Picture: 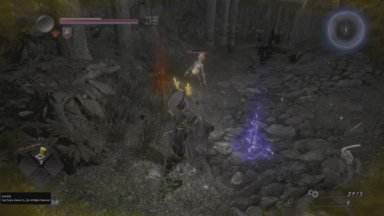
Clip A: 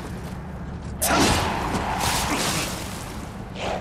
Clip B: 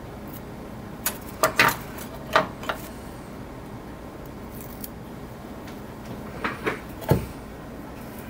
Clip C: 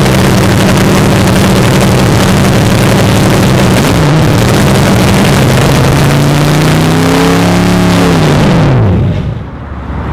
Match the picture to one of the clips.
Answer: A